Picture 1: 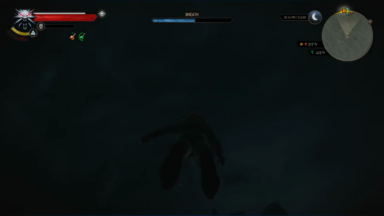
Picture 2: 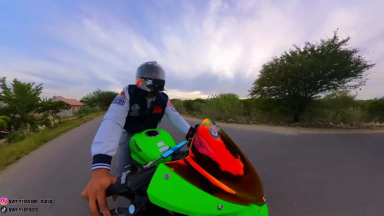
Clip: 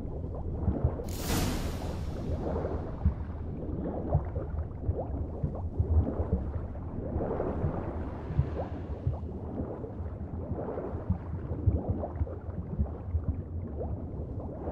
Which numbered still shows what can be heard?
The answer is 1